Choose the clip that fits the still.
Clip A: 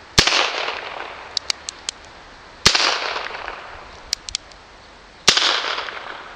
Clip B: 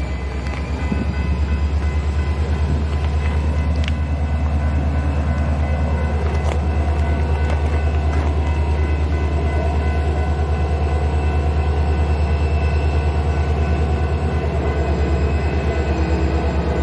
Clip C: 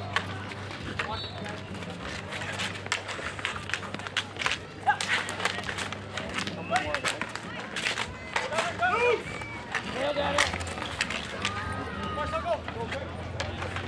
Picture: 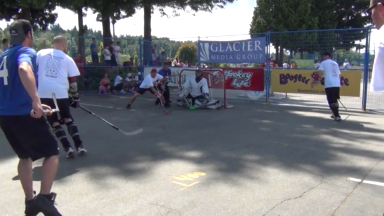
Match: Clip C